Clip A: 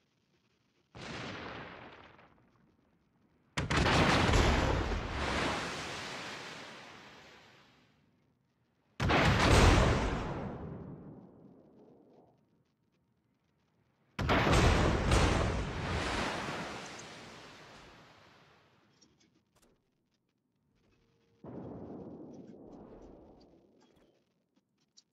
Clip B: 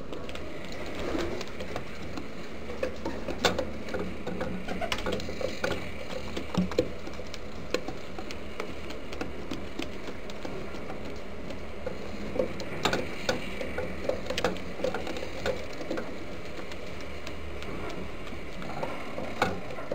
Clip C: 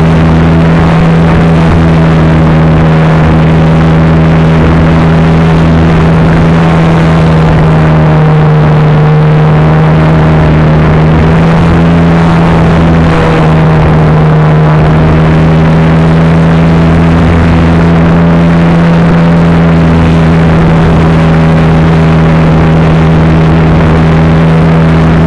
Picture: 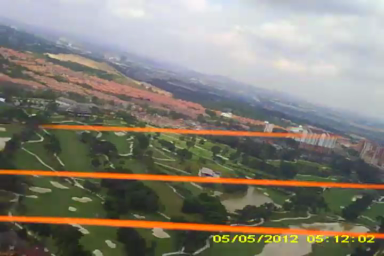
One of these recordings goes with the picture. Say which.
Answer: C